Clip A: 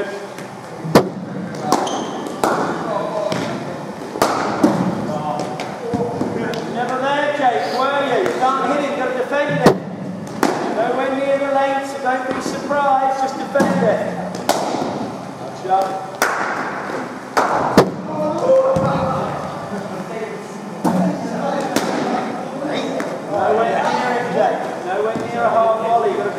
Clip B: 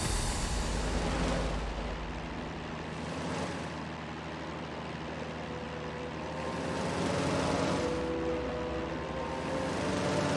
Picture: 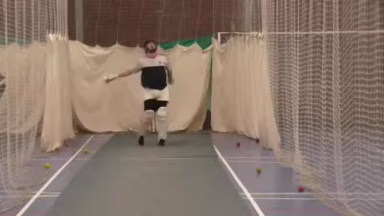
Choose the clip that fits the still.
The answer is A